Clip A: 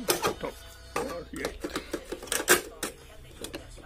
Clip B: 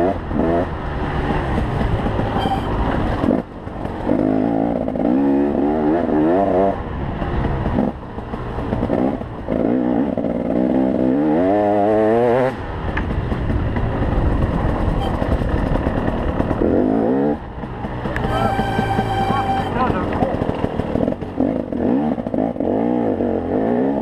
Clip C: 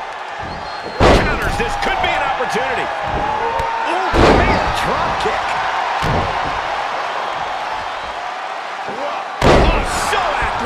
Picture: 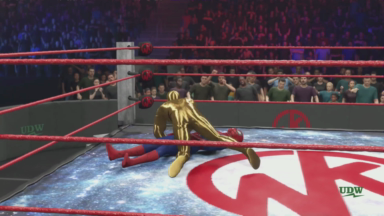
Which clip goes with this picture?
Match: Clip C